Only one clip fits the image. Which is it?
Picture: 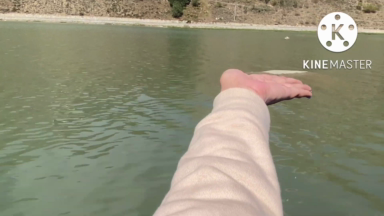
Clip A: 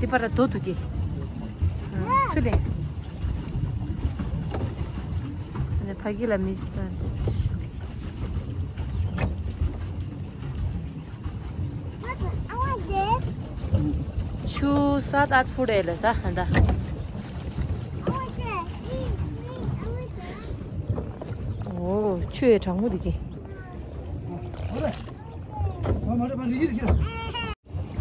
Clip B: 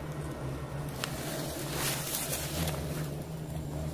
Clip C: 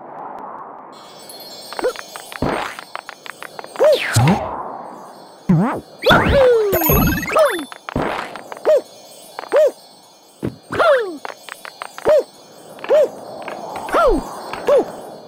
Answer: A